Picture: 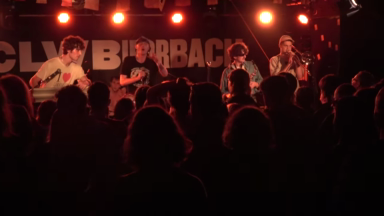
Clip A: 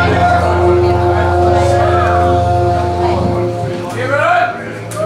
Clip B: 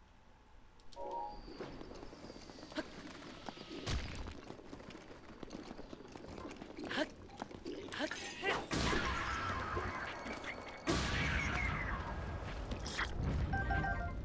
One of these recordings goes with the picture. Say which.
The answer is A